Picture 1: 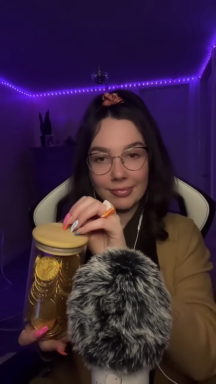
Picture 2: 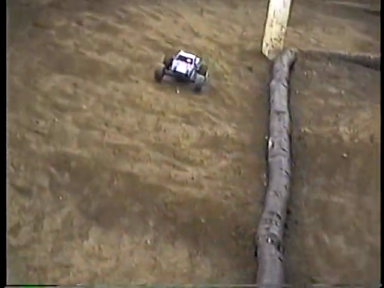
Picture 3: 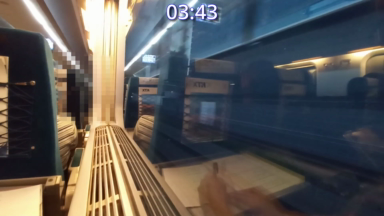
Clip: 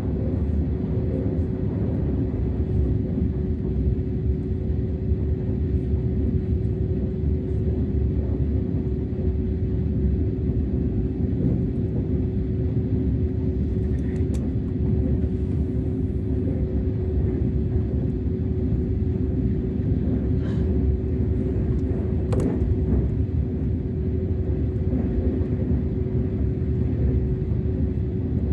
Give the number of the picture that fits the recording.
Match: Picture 3